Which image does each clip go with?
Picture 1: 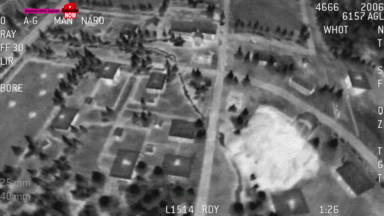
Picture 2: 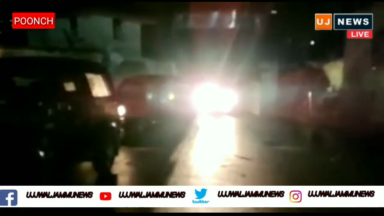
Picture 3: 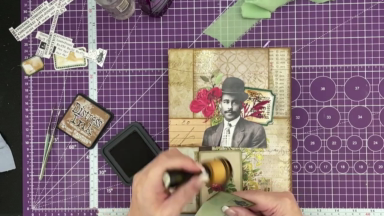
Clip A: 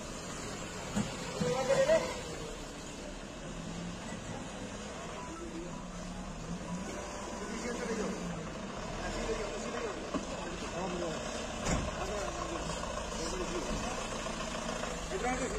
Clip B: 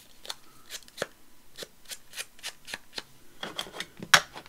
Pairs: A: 2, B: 3